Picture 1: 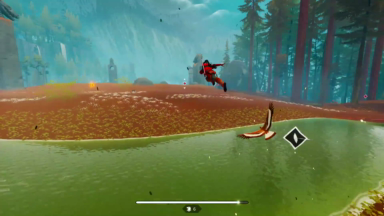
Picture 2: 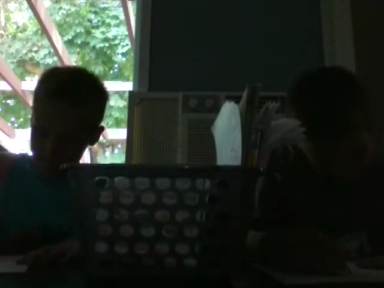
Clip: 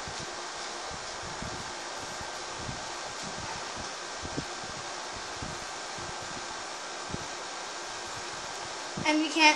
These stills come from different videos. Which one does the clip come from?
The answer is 2